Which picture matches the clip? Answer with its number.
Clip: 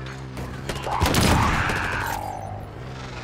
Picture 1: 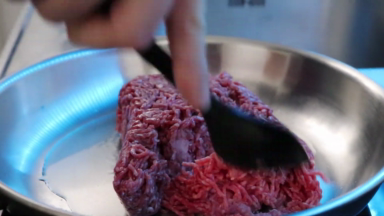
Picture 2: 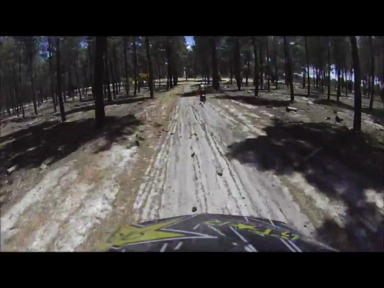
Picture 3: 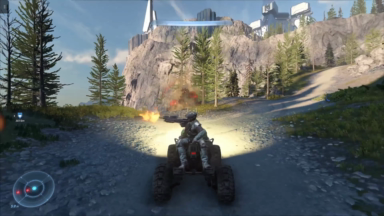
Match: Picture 3